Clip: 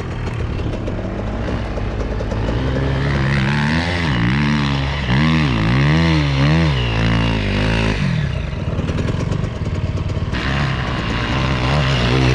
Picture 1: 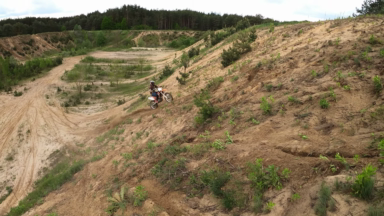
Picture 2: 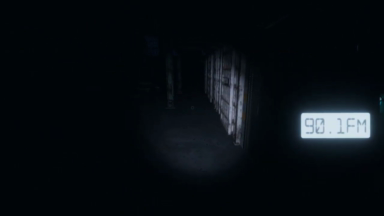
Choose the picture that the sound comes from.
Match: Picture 1